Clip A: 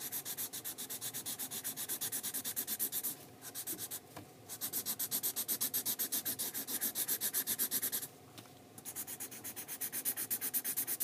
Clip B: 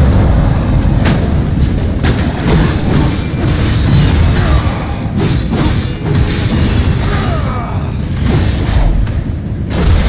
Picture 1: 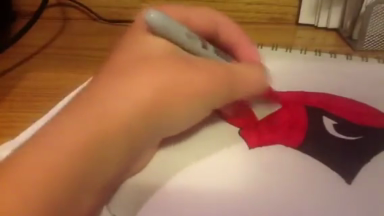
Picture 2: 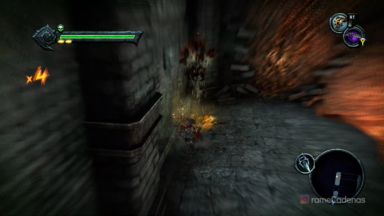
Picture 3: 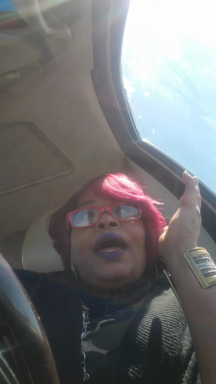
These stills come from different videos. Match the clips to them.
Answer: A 1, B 2